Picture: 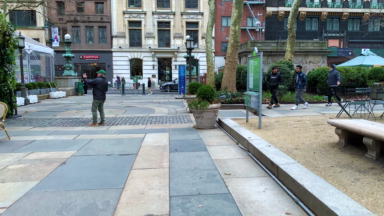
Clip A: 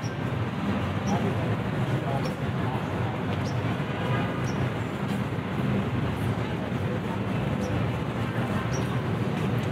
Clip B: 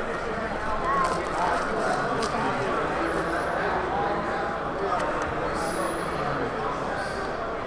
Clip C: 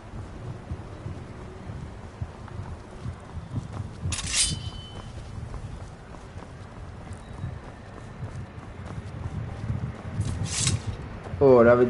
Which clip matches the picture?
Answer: A